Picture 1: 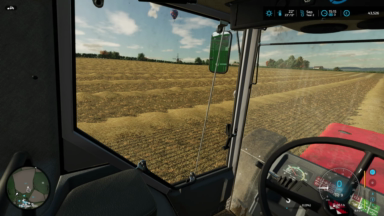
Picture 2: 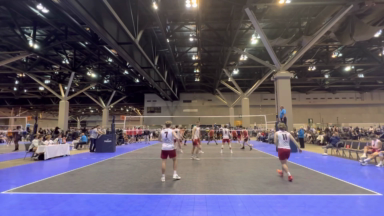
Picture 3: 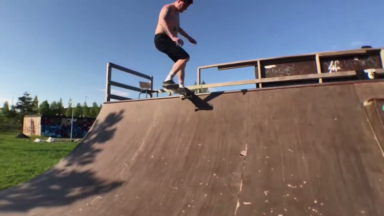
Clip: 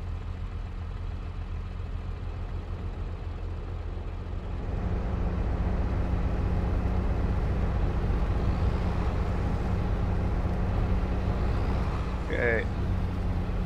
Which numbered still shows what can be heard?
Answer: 1